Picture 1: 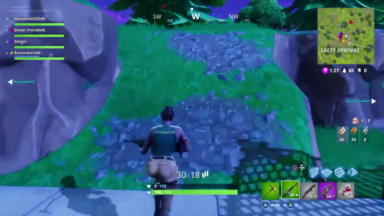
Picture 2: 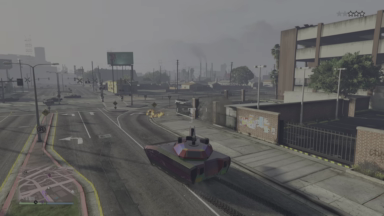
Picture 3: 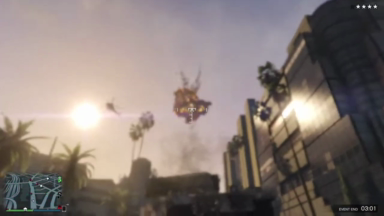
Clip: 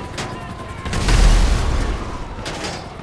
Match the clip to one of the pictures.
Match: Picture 3